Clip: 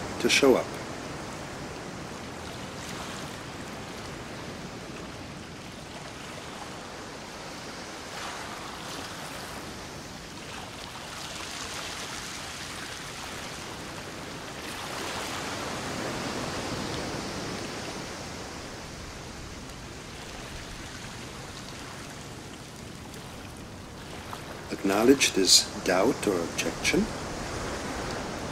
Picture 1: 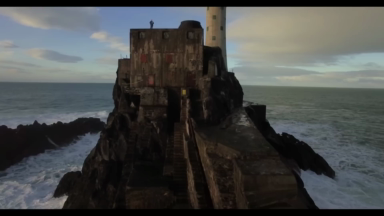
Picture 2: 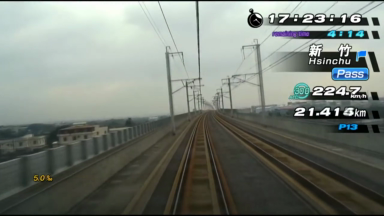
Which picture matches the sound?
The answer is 1